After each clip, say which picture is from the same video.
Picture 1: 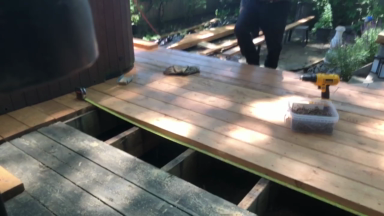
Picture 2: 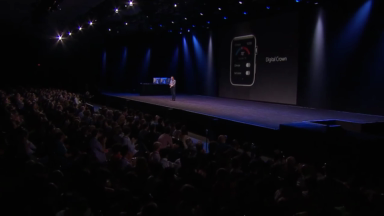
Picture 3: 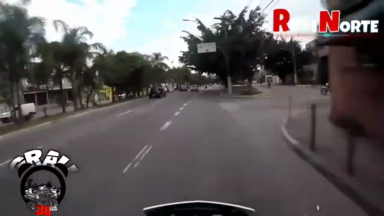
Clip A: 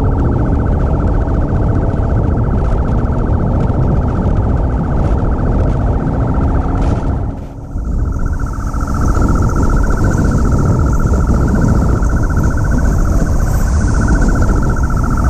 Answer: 3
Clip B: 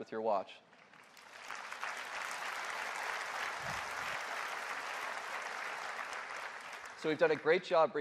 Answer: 2